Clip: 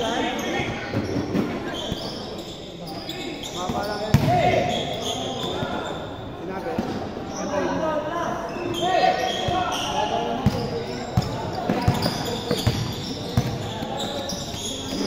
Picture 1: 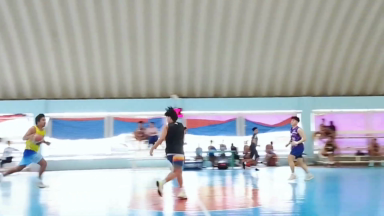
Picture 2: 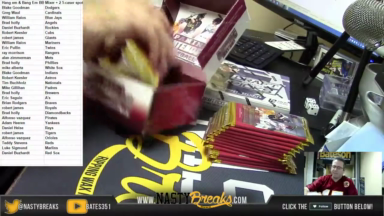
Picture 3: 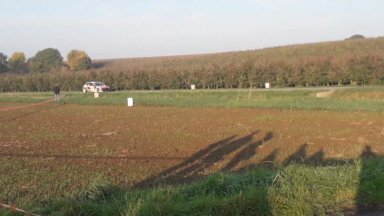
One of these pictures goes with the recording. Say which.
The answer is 1